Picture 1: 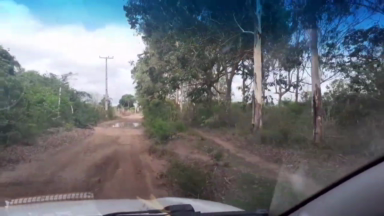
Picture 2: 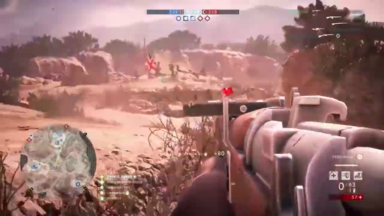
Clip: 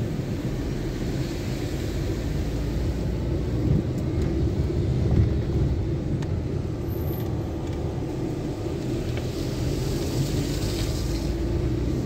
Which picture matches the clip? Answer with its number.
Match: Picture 1